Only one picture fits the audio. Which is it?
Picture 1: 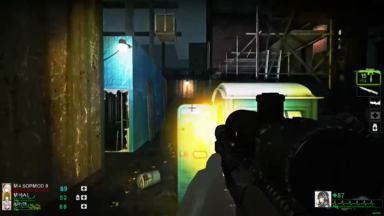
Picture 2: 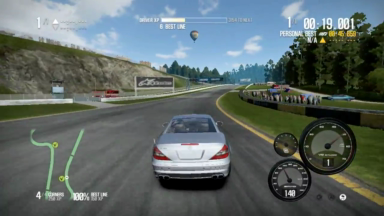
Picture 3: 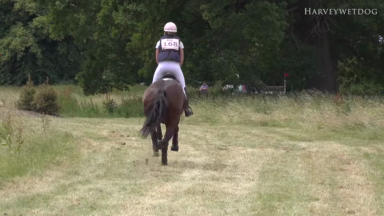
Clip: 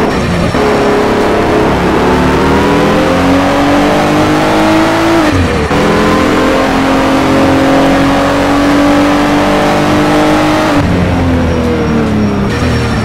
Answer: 2